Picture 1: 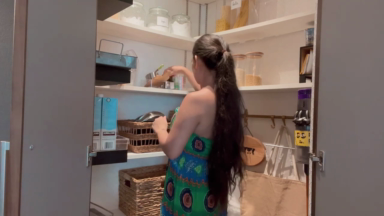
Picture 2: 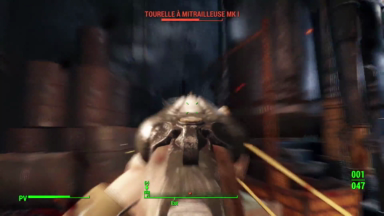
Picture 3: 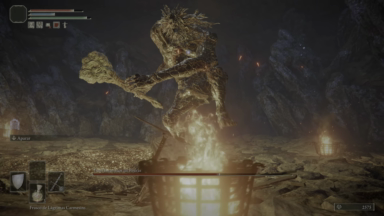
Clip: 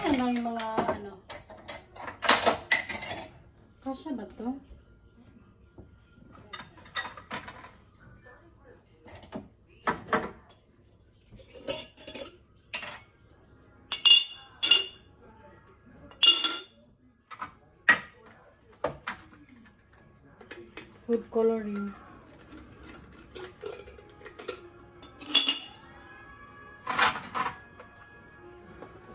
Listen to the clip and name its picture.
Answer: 1